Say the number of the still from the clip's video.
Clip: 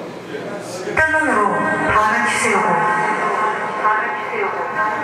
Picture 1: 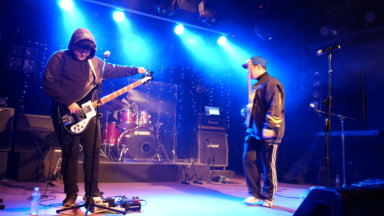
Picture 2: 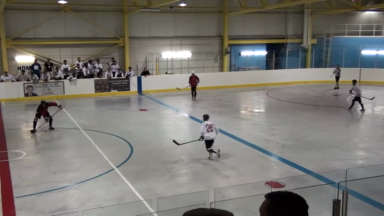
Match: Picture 1